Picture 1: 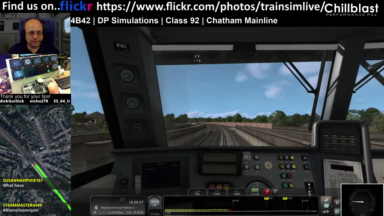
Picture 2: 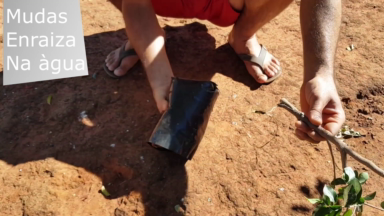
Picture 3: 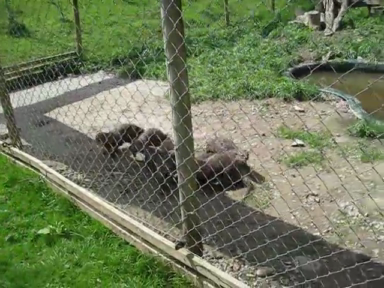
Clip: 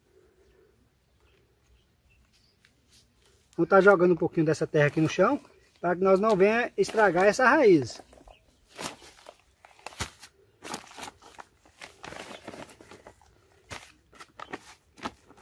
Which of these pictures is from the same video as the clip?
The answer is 2